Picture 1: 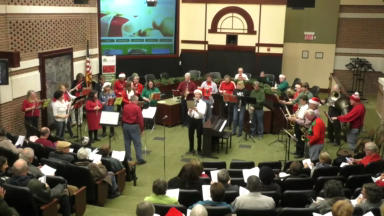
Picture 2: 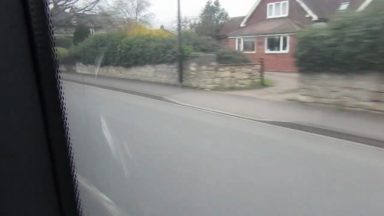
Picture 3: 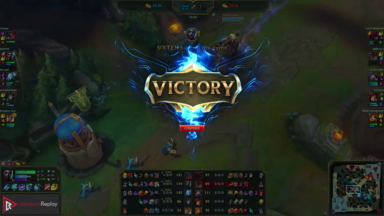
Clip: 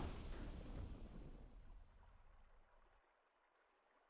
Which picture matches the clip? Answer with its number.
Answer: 3